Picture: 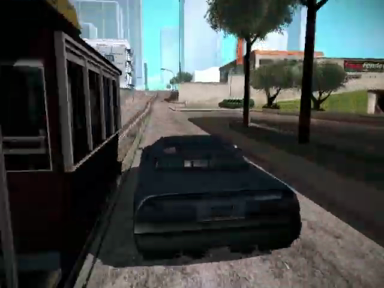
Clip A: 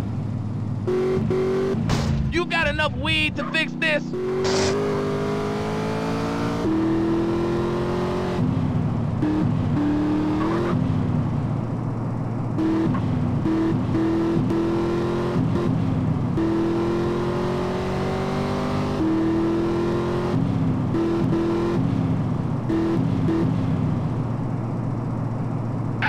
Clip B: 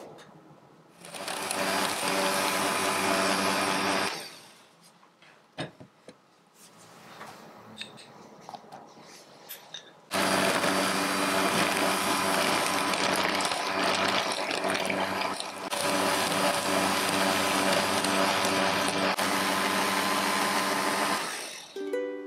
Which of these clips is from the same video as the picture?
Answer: A